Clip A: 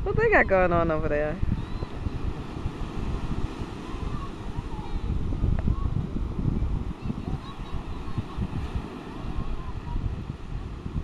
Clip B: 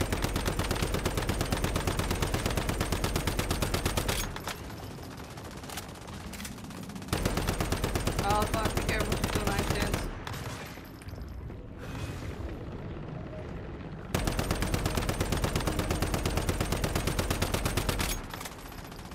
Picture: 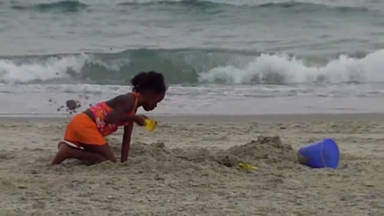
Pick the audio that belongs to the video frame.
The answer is A